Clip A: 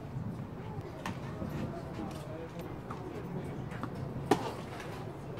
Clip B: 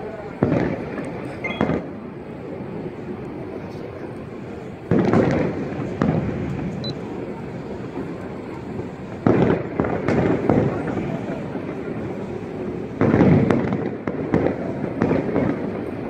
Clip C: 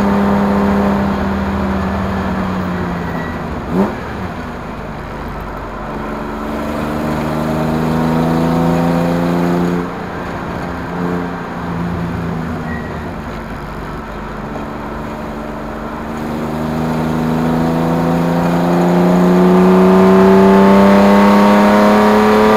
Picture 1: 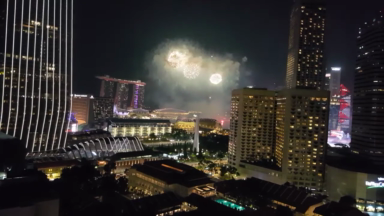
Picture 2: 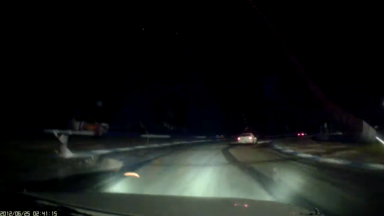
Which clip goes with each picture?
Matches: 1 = B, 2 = C